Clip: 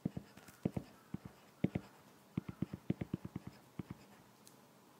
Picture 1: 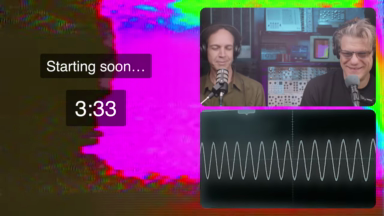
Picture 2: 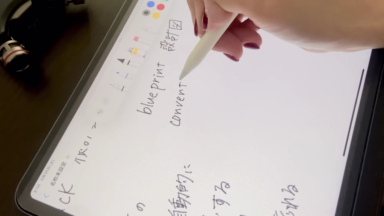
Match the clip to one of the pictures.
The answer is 2